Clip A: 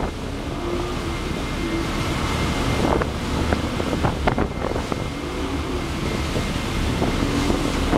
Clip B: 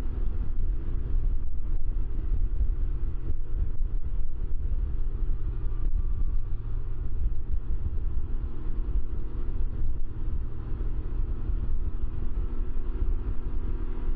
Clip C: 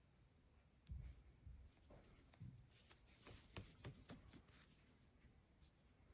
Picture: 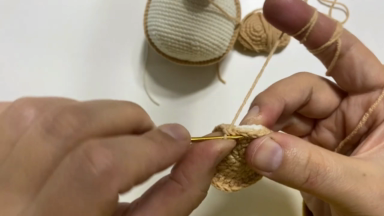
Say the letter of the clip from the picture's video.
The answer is C